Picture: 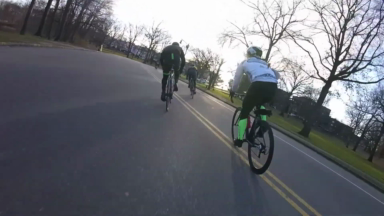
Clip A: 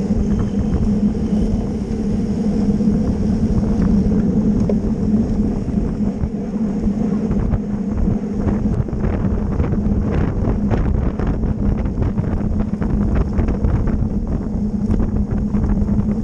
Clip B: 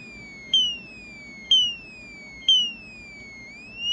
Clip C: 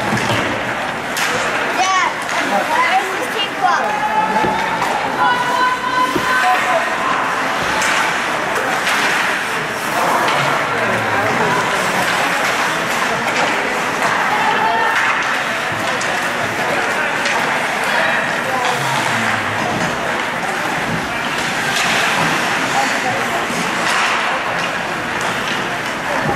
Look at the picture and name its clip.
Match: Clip A